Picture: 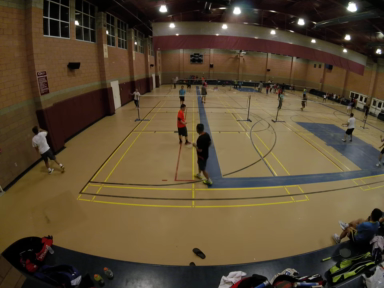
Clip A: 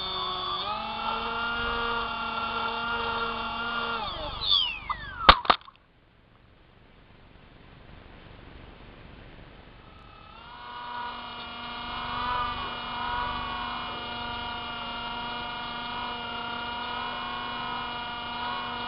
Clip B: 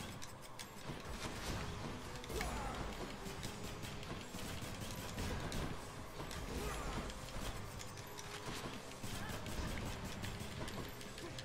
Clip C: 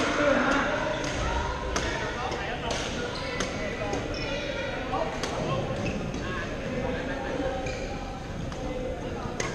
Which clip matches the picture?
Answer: C